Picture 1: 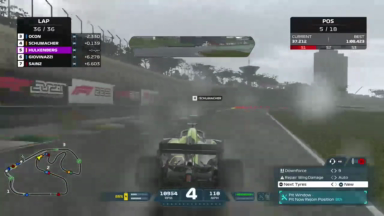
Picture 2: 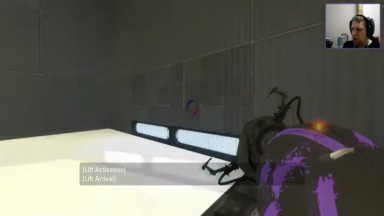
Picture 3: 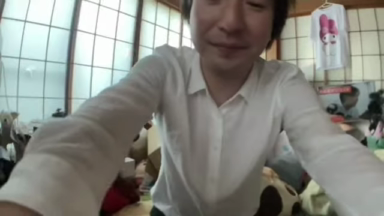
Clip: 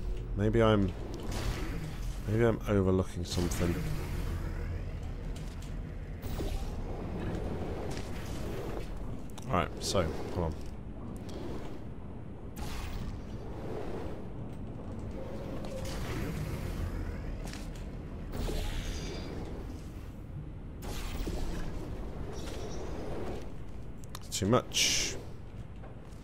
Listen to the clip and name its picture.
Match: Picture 2